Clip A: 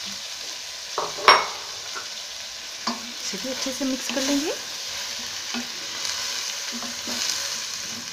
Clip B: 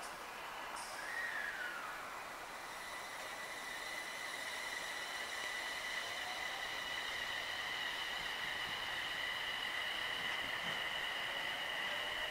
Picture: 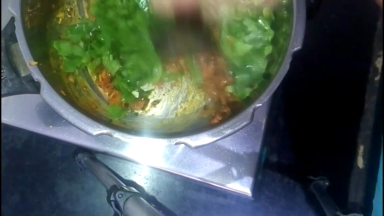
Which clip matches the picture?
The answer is A